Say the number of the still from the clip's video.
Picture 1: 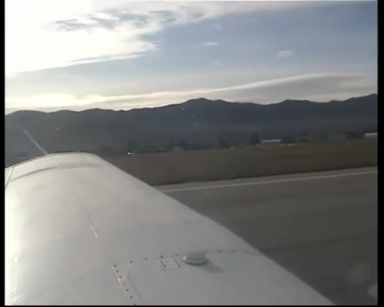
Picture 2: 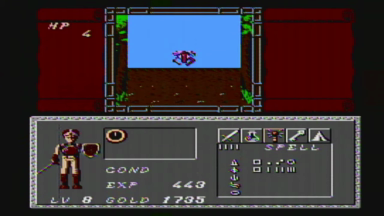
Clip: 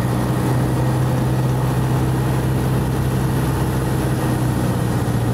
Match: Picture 1